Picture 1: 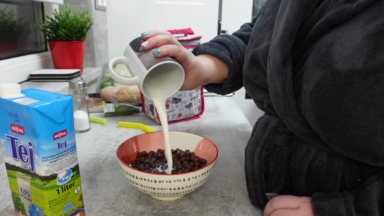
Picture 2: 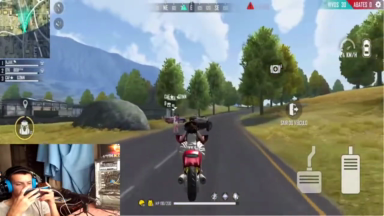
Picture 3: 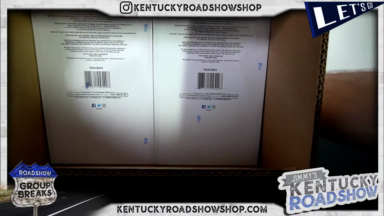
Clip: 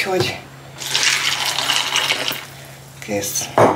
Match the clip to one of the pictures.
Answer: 1